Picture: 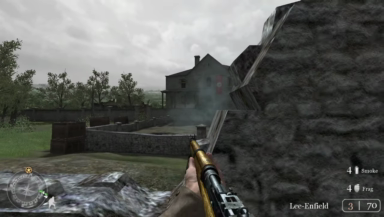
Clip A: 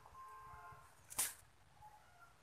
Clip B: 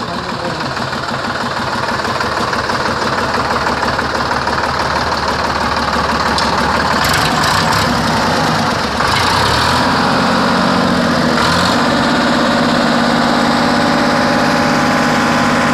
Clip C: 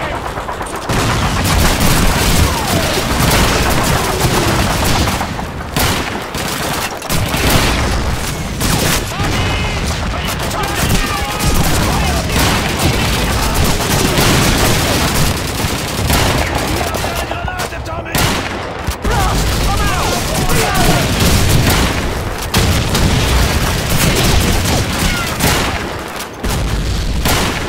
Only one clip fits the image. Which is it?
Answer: C